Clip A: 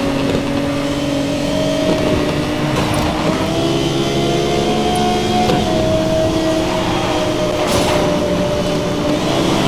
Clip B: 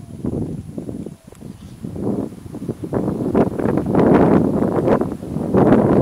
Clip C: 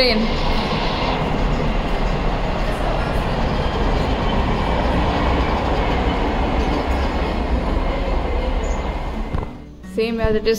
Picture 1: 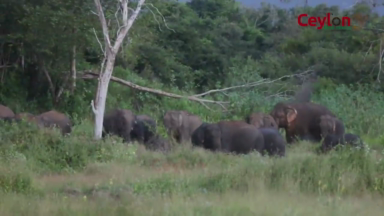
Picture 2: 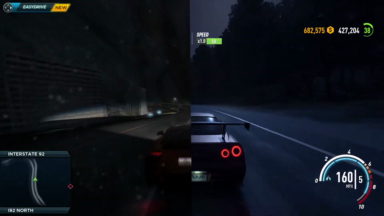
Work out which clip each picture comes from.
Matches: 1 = B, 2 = A